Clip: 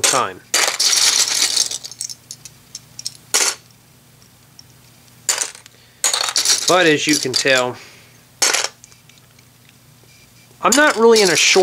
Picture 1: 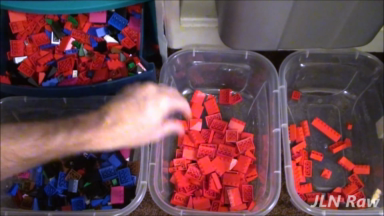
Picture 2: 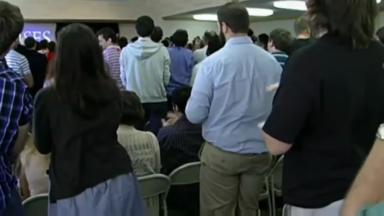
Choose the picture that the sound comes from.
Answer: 1